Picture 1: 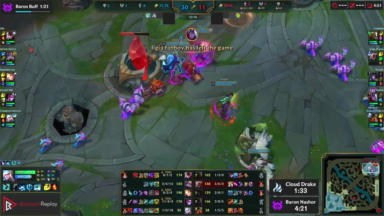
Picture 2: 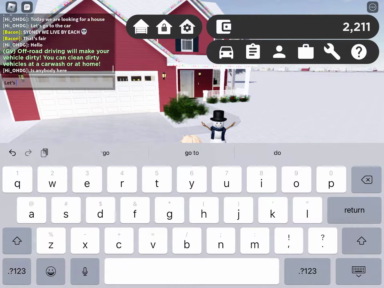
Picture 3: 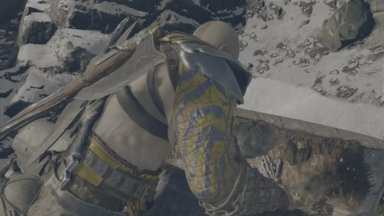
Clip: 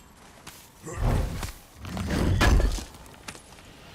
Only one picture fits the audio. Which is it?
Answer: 3